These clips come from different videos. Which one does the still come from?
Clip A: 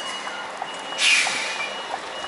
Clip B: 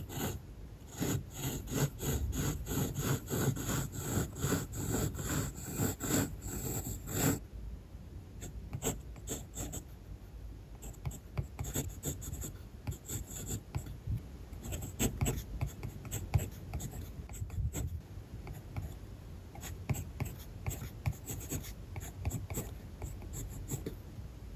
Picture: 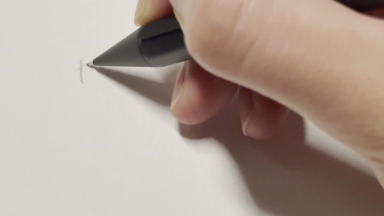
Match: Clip B